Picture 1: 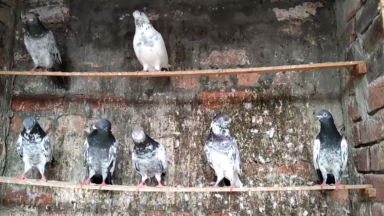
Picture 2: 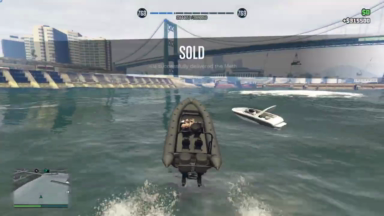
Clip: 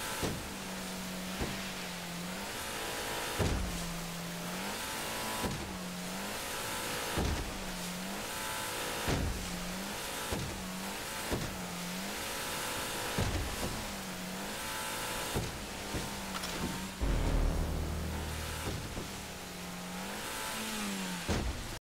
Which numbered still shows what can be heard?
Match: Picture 2